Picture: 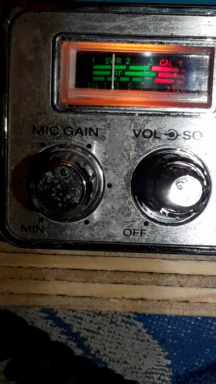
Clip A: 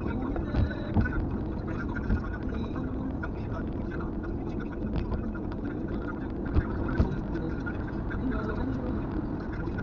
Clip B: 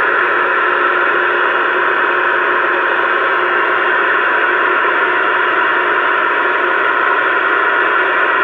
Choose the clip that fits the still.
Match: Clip B